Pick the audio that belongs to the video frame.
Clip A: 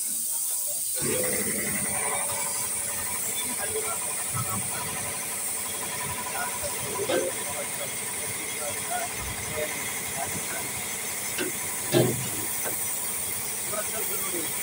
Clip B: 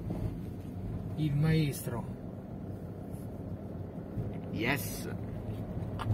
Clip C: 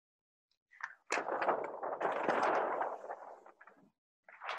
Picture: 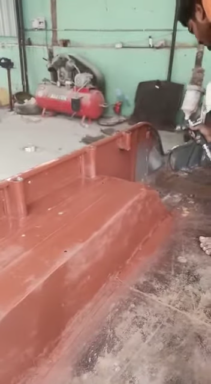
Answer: A